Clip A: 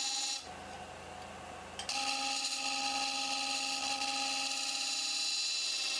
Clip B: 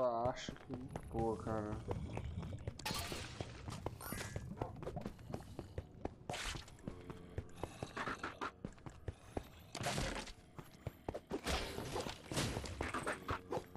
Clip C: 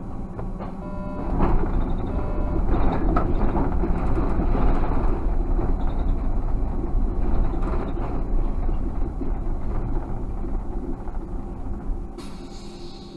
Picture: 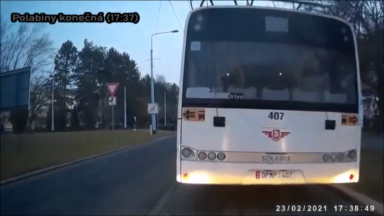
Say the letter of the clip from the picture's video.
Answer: C